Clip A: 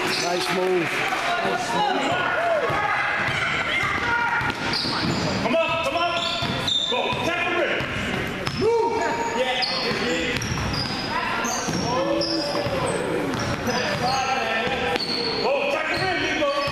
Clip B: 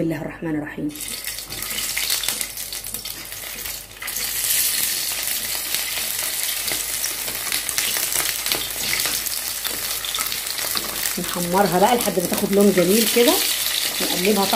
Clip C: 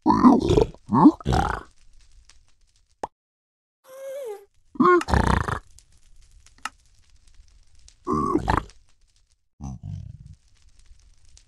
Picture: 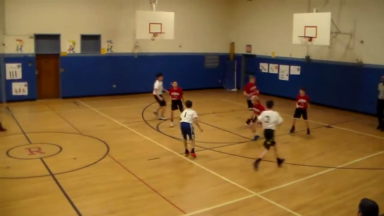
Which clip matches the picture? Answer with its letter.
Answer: A